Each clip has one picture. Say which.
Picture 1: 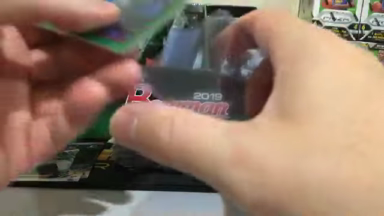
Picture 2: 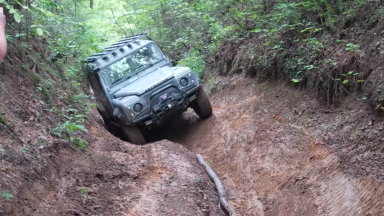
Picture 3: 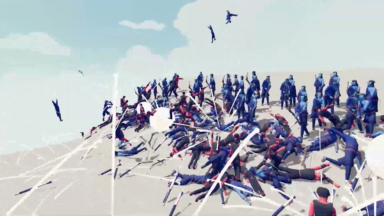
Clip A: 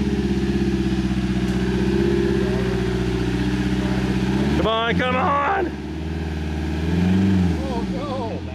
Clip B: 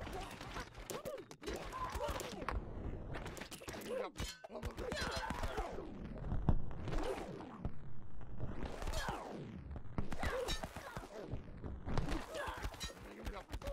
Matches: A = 2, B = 3